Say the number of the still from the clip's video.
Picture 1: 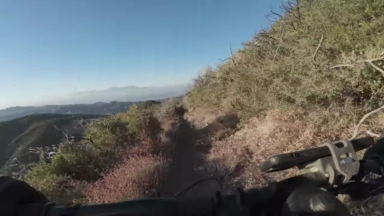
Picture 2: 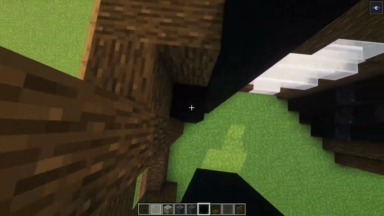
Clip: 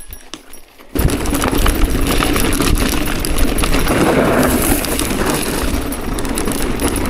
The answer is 1